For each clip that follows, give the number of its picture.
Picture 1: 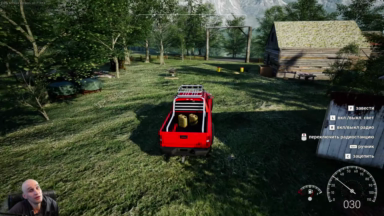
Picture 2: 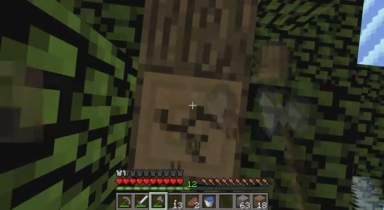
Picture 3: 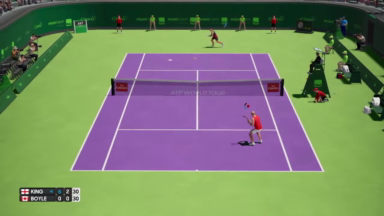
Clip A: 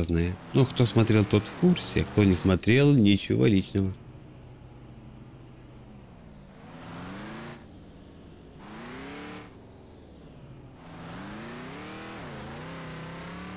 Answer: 1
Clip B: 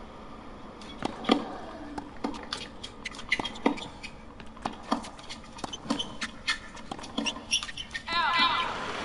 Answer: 3